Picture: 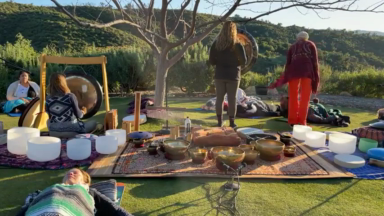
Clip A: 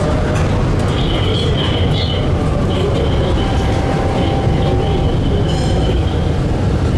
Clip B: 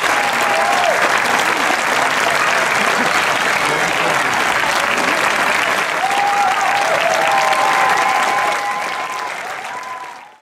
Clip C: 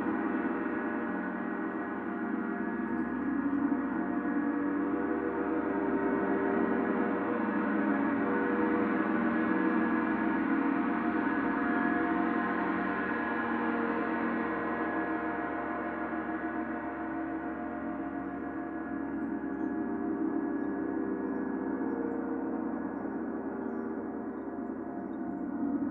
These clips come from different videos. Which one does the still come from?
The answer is C